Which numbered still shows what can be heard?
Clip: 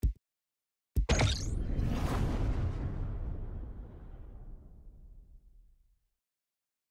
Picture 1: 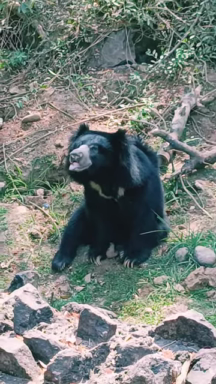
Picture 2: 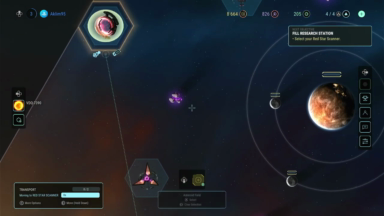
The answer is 2